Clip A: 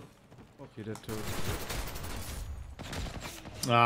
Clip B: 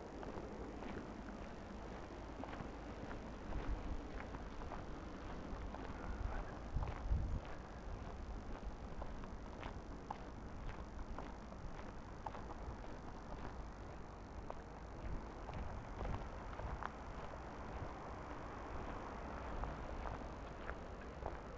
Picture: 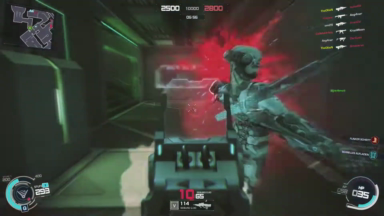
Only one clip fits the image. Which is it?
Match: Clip A